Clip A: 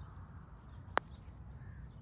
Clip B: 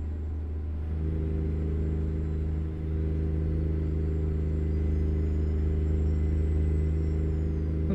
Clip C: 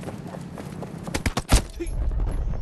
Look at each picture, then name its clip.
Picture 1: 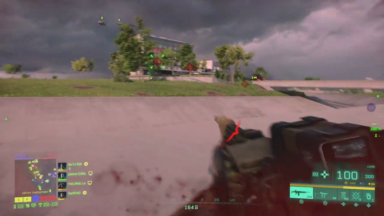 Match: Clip C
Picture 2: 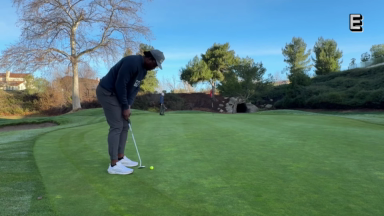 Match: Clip A